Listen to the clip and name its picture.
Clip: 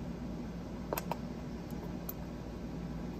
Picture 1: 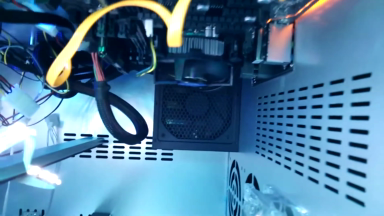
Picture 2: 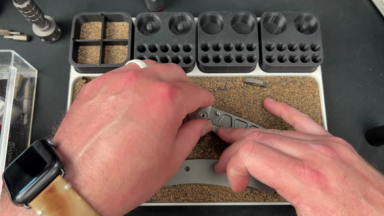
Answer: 2